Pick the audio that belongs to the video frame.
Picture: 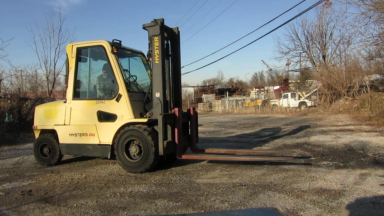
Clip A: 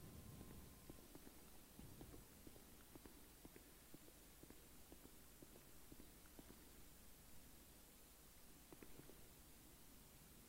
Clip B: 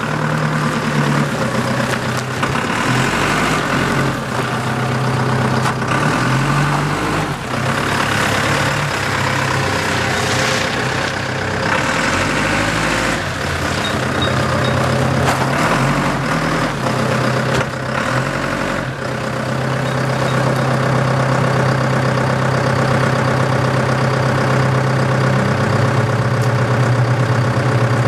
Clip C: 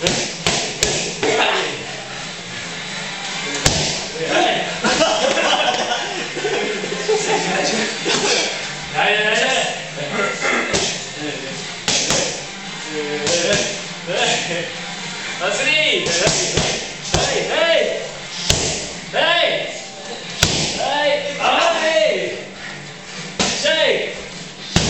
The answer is B